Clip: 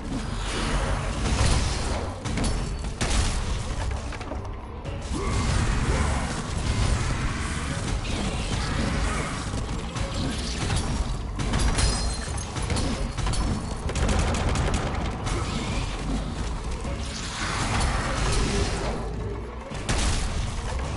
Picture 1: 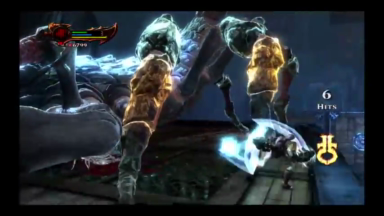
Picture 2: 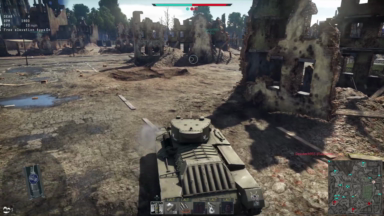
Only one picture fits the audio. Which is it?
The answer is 1